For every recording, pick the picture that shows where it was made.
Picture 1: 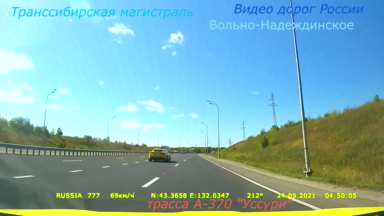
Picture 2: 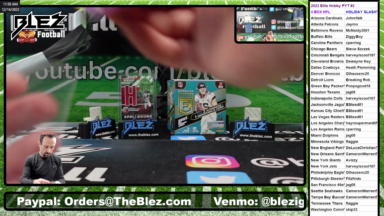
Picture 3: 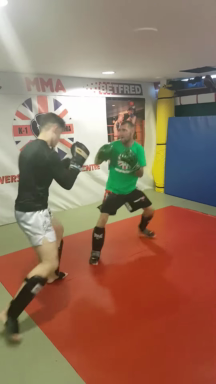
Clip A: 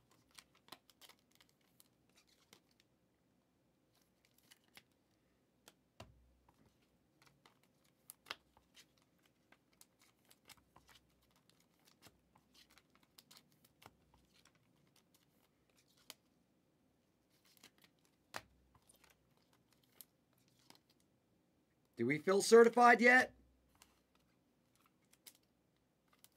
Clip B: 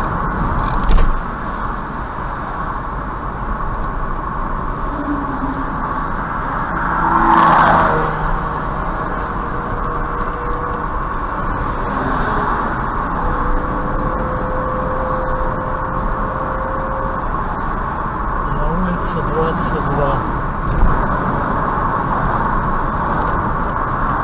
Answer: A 2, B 1